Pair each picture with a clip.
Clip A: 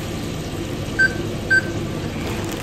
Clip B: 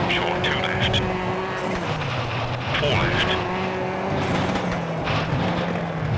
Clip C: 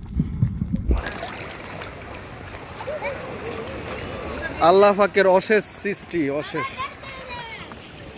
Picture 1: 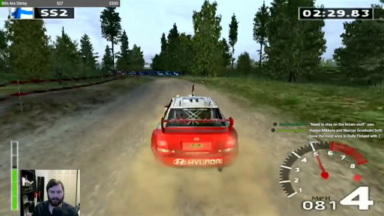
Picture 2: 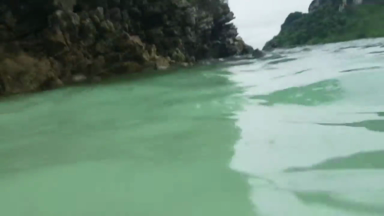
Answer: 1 B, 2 C